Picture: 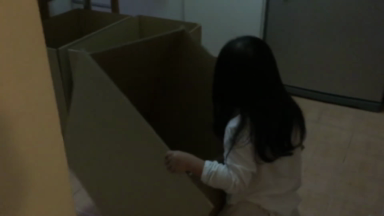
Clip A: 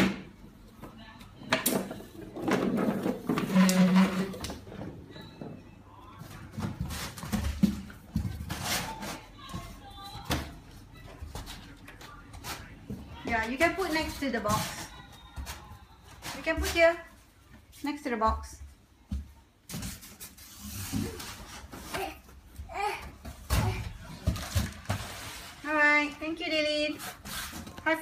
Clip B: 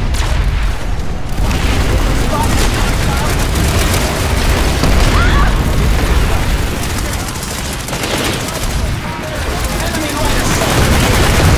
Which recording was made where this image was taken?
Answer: A